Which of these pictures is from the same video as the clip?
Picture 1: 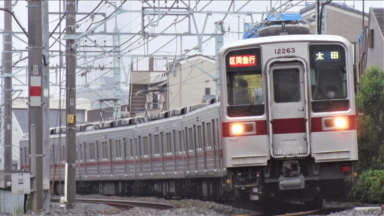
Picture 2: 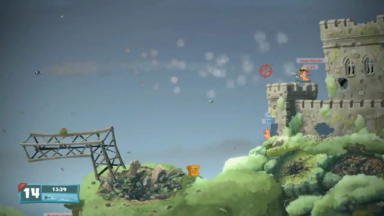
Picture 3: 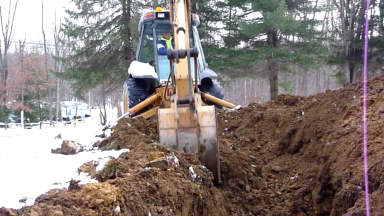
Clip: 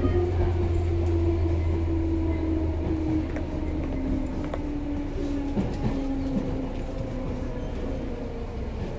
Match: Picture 1